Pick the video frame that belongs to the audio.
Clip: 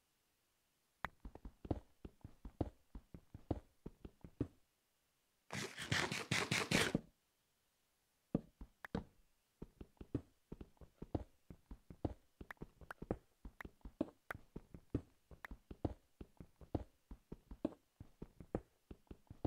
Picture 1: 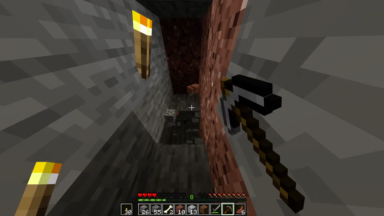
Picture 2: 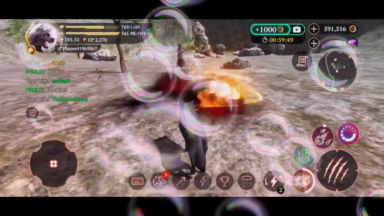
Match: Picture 1